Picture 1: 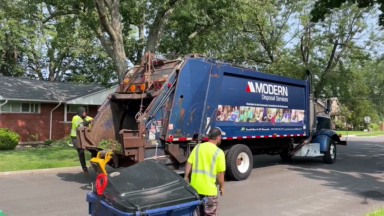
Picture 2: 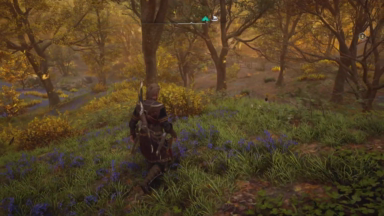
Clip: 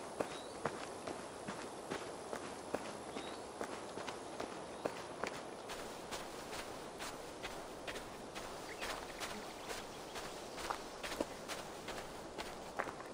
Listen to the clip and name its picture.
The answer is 2